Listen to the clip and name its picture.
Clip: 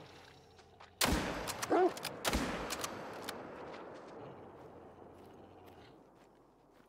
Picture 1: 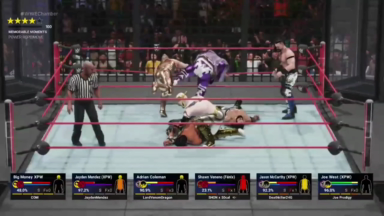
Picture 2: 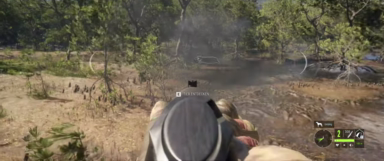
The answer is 2